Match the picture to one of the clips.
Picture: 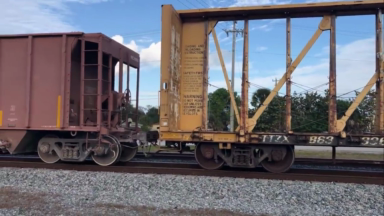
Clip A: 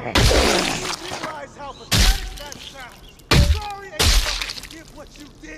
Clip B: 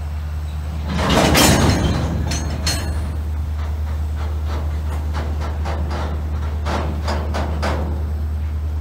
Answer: B